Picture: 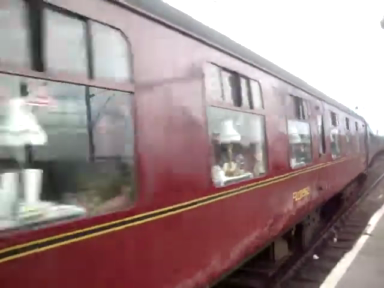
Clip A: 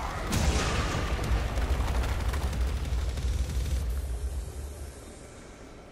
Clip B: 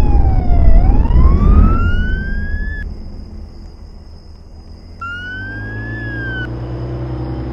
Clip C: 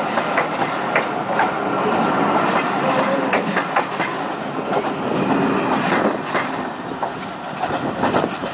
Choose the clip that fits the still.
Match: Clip C